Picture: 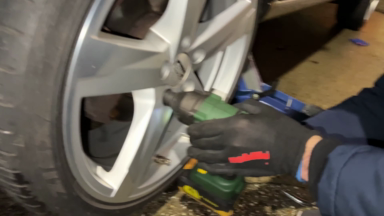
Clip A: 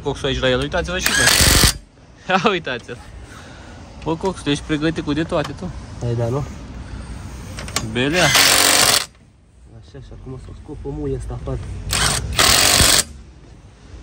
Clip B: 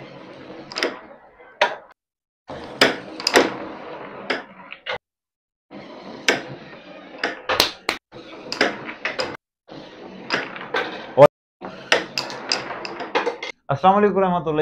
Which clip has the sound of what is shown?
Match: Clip A